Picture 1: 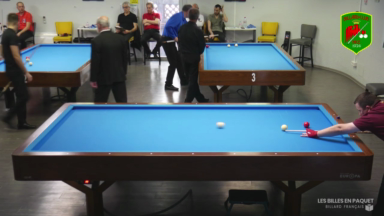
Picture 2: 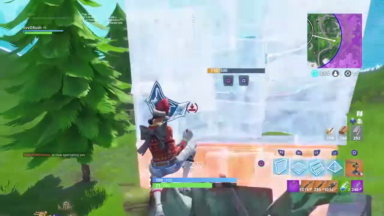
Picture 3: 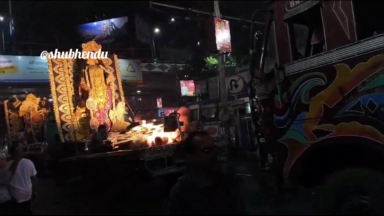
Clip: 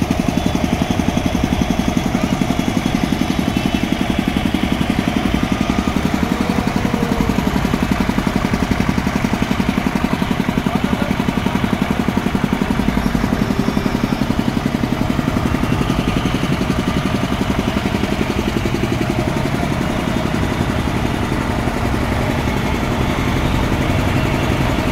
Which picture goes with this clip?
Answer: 3